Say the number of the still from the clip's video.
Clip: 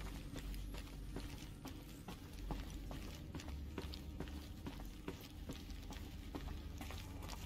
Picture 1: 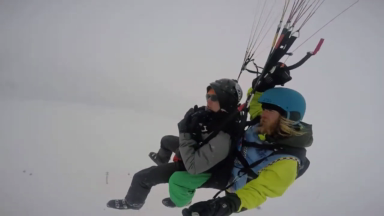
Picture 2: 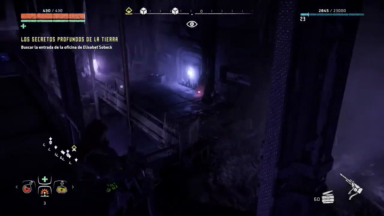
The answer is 2